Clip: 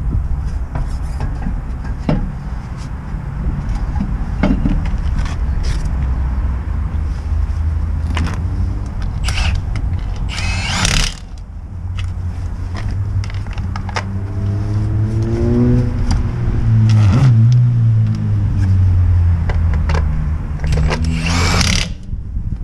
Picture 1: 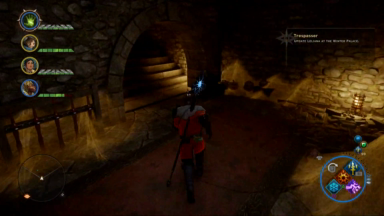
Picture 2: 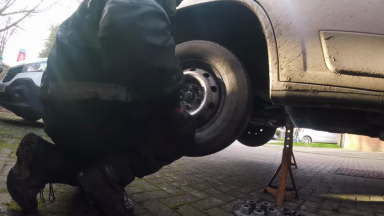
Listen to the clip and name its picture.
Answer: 2